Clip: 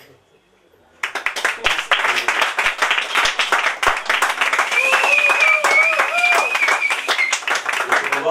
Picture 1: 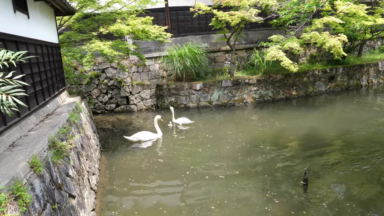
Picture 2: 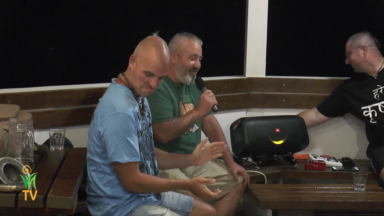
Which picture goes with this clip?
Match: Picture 2